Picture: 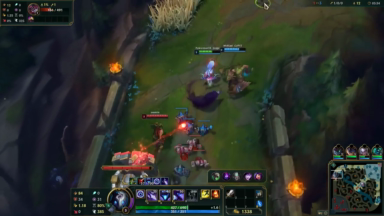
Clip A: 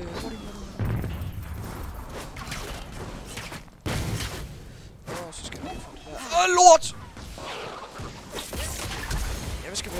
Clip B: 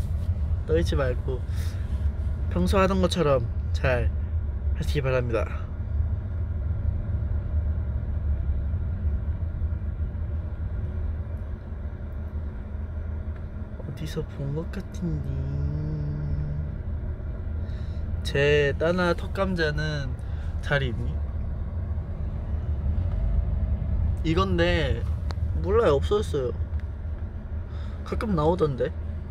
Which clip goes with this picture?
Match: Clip A